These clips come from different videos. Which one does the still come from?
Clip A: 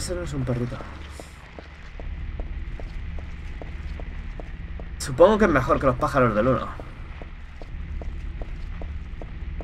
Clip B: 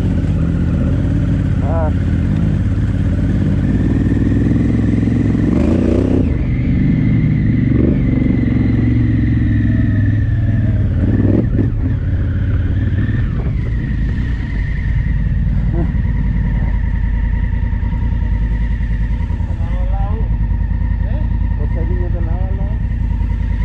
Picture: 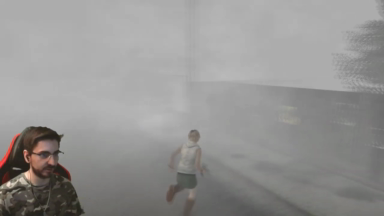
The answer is A